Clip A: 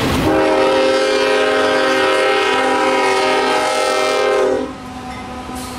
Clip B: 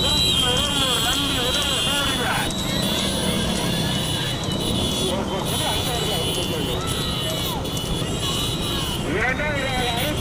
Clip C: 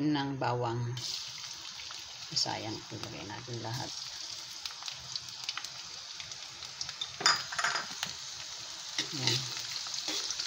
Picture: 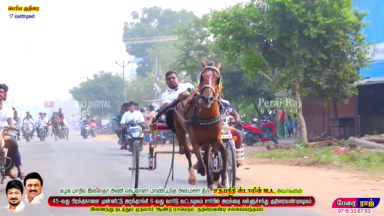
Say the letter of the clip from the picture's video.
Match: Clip B